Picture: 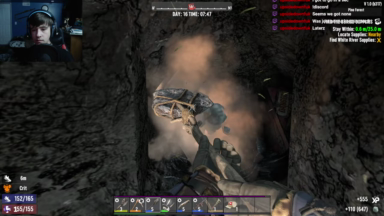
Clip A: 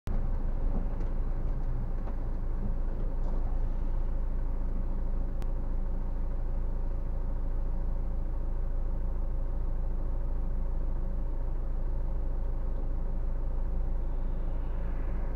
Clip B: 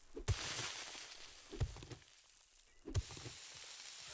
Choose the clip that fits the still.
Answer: B